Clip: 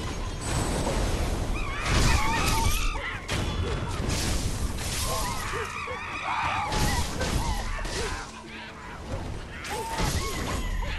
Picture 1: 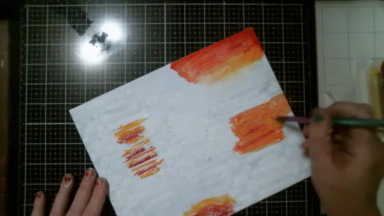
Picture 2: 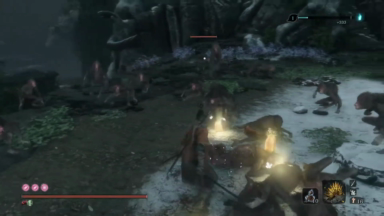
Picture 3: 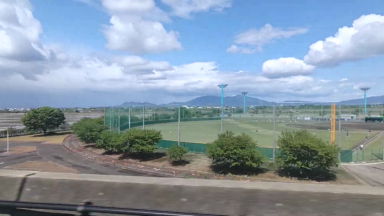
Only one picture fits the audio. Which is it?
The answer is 2